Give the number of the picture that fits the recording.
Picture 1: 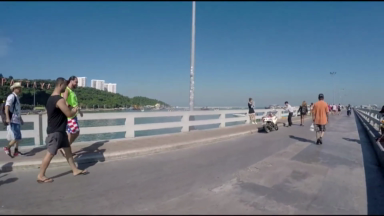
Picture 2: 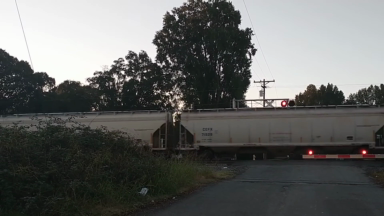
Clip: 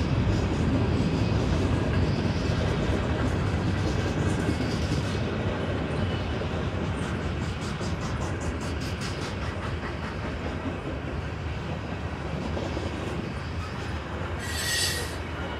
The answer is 2